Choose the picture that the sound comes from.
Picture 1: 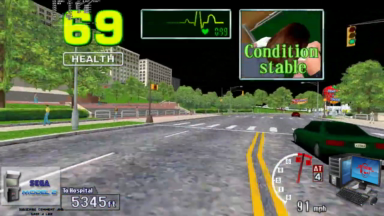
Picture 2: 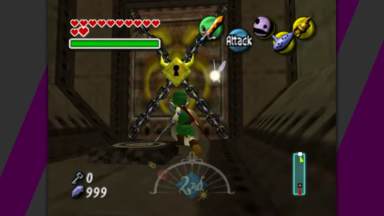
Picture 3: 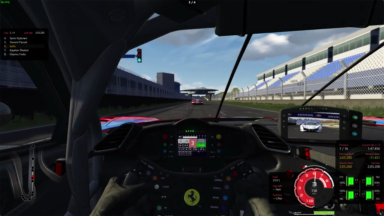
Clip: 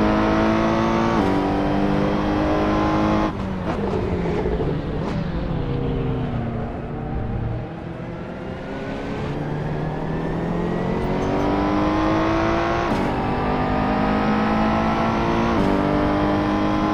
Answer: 3